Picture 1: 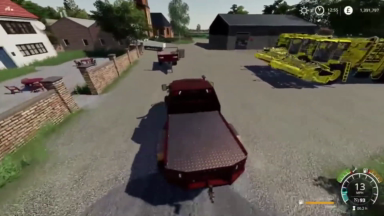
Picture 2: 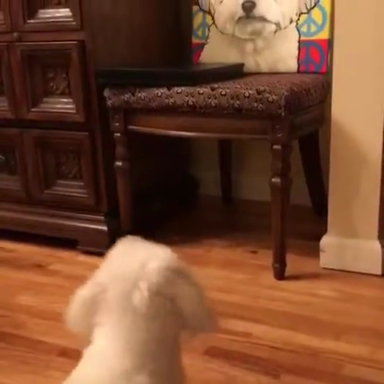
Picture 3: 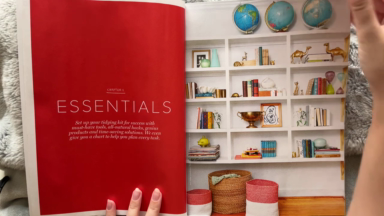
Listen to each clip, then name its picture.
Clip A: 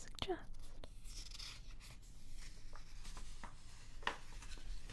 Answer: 3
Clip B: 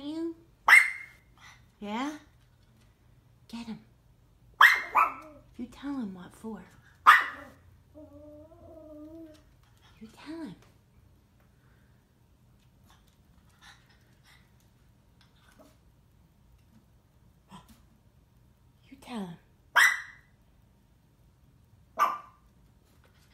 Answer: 2